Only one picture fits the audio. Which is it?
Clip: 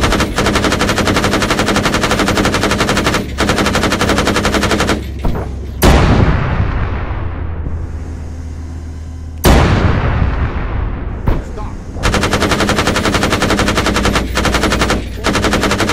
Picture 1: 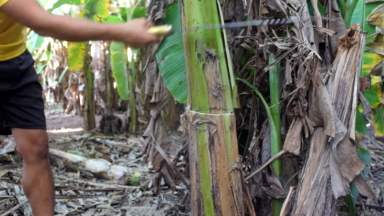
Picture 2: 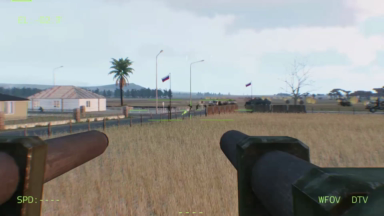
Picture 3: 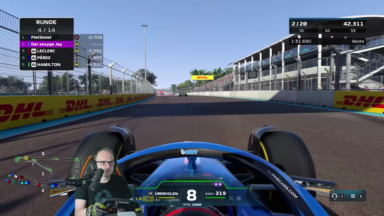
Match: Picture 2